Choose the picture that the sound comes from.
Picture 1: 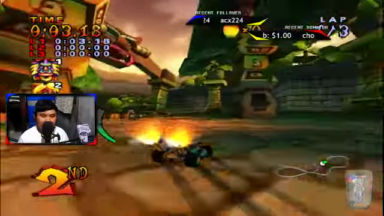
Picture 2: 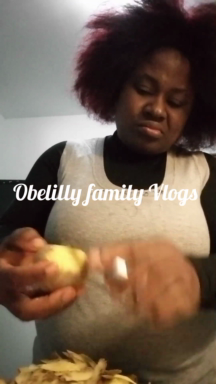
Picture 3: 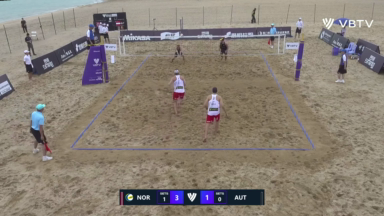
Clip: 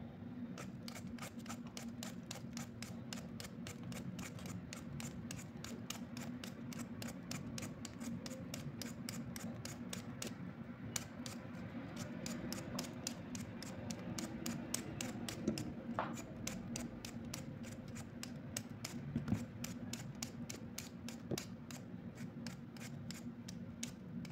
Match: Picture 2